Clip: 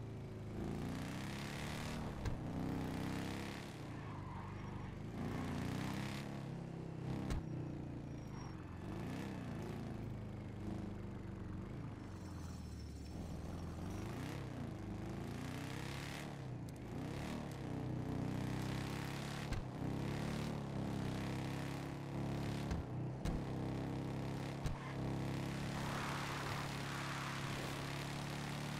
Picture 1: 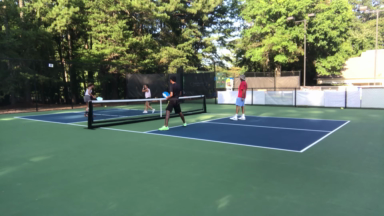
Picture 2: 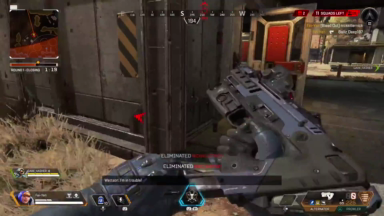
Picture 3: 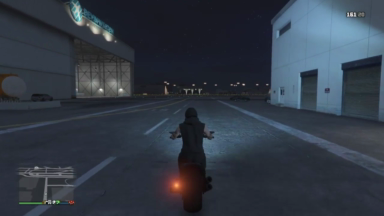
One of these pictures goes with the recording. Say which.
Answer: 3